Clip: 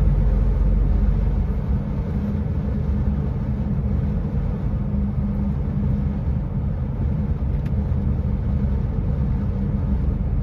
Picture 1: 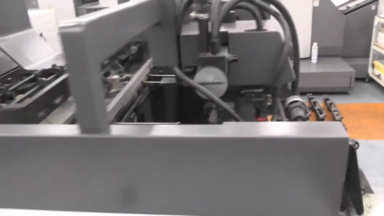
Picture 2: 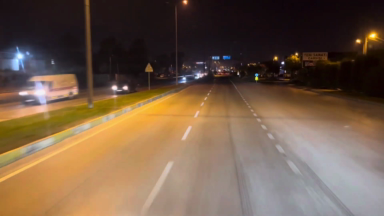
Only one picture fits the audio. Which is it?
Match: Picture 2